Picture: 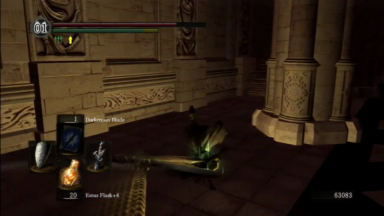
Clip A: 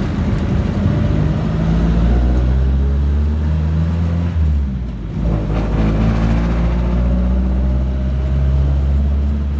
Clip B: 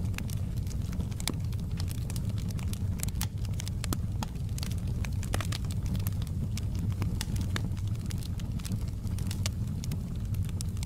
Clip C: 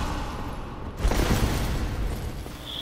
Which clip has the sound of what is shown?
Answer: C